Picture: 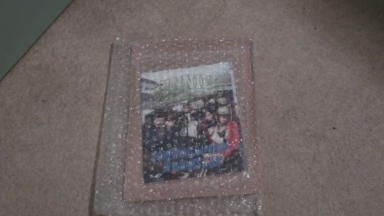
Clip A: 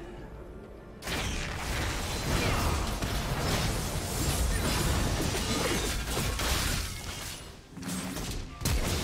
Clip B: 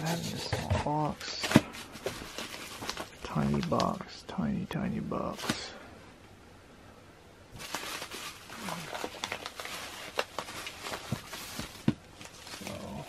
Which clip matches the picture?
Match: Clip B